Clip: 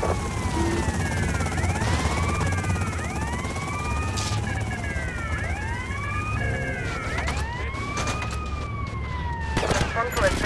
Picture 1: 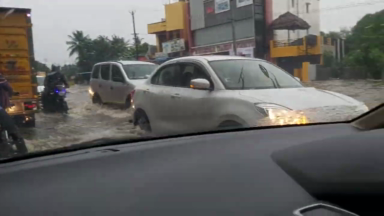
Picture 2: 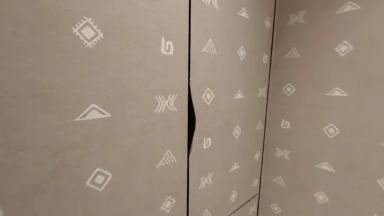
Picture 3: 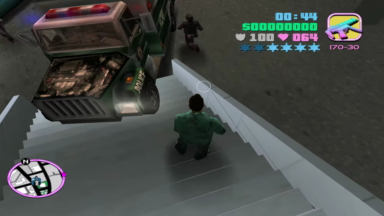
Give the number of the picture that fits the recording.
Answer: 3